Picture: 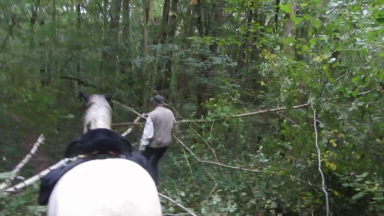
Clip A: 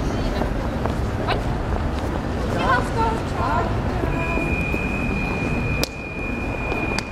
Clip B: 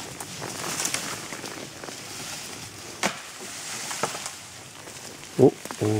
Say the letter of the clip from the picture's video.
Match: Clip B